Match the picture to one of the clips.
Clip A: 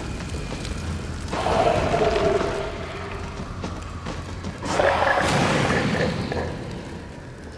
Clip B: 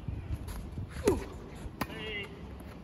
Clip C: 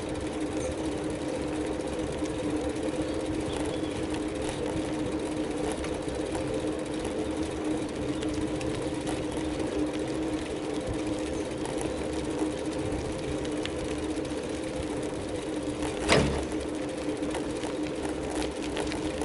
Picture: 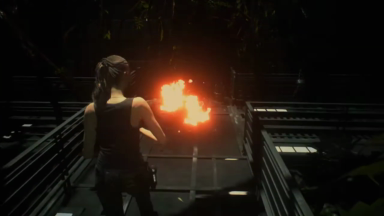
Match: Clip A